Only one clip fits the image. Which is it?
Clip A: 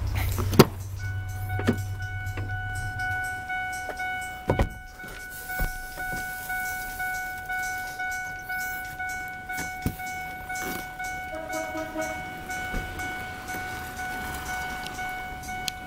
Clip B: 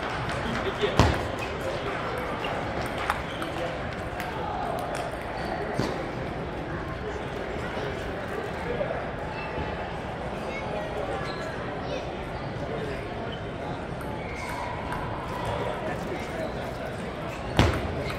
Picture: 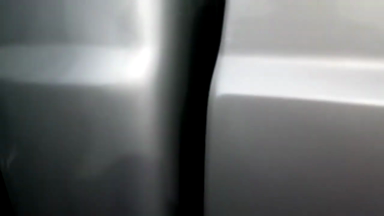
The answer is A